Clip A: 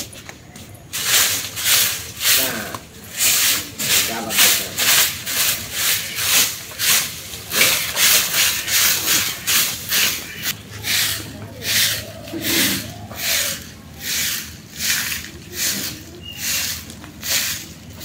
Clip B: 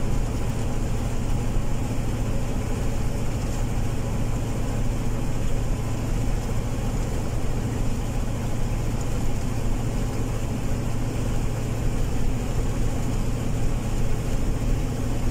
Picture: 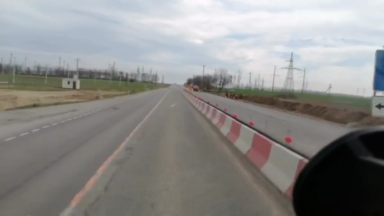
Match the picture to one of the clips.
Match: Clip B